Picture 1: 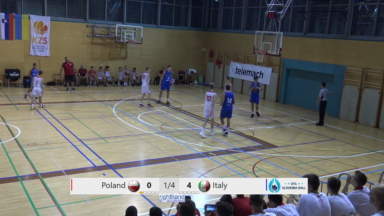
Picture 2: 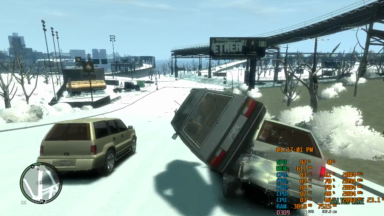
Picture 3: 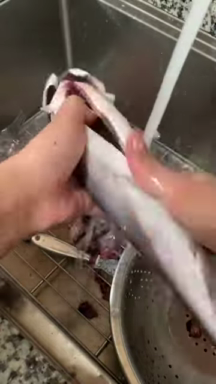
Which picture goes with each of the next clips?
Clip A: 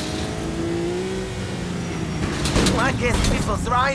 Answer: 2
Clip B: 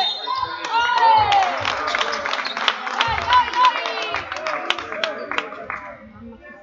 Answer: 1